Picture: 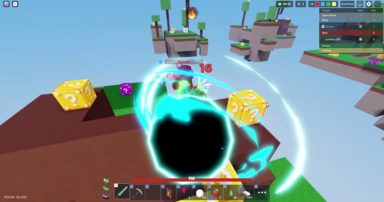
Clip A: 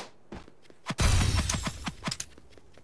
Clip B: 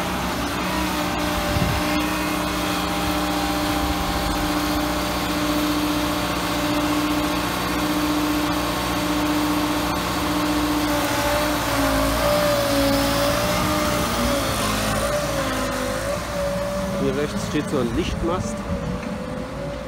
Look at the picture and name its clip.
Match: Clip A